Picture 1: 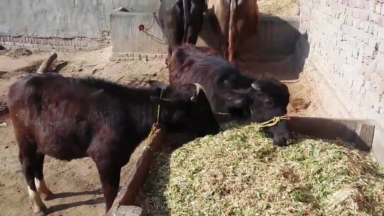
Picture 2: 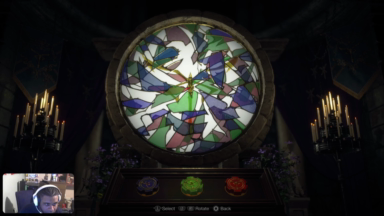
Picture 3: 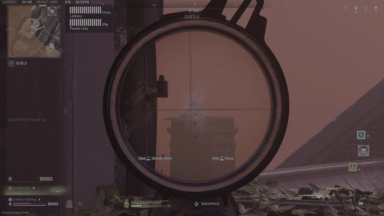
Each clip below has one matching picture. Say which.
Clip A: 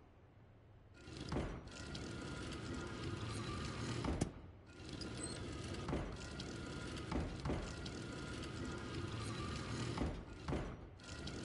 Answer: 2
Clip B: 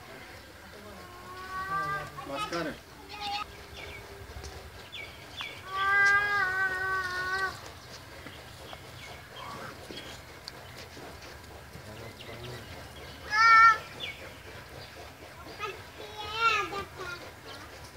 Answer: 1